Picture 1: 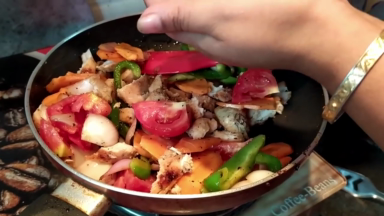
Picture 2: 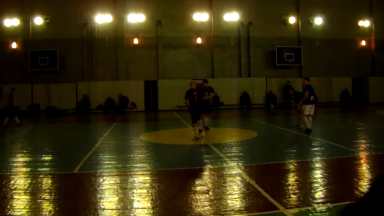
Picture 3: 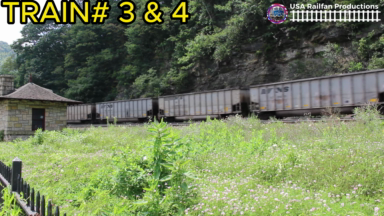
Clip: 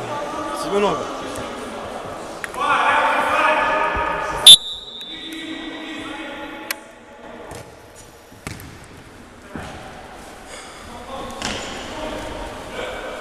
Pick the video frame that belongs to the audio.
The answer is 2